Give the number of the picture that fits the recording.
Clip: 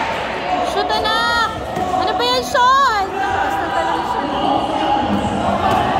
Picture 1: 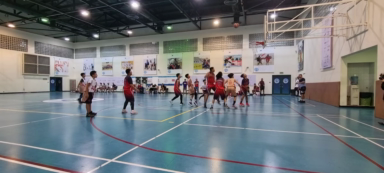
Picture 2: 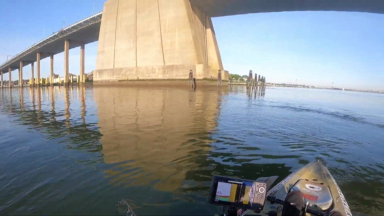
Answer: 1